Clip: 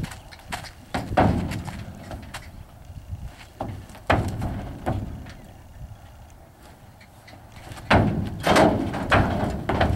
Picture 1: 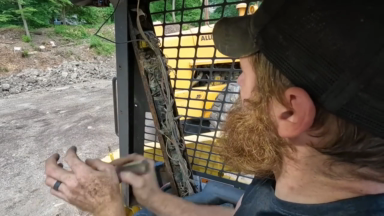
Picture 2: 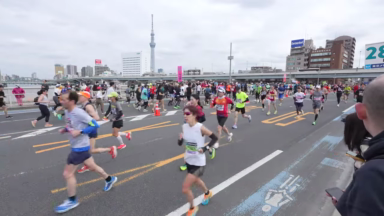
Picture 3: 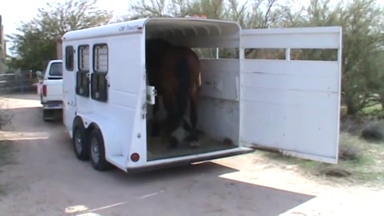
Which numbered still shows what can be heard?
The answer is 3